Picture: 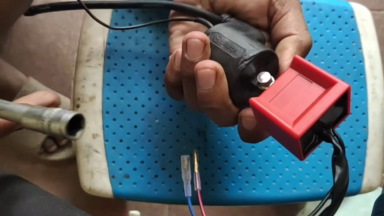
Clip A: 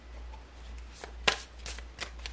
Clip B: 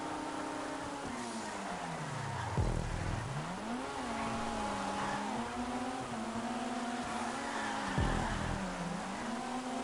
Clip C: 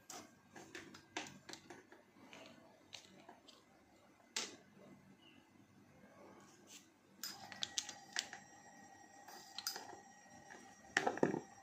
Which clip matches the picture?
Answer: C